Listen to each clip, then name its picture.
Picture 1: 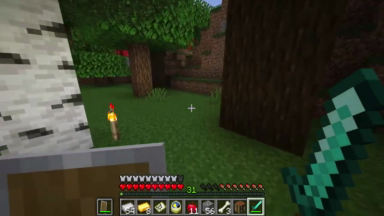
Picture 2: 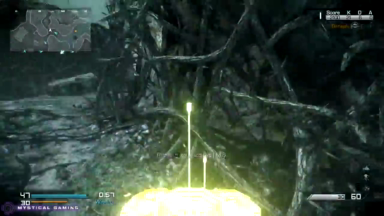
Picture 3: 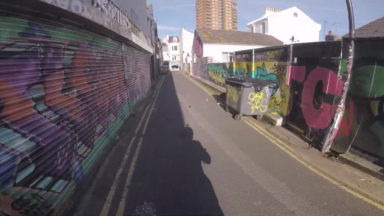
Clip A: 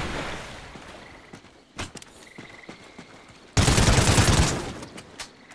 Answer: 2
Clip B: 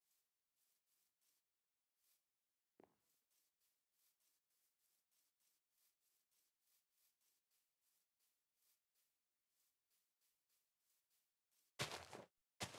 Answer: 1